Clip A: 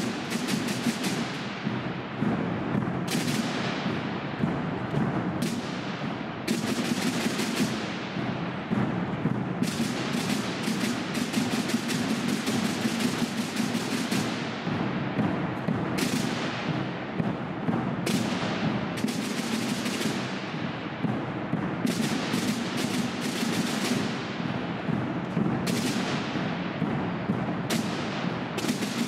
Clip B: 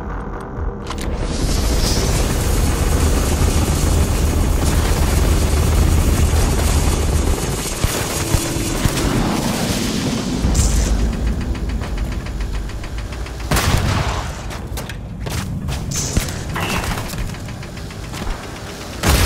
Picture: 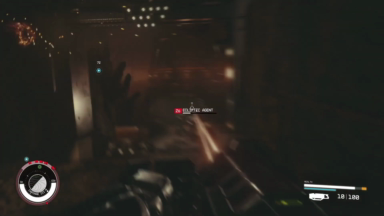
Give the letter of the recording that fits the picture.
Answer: B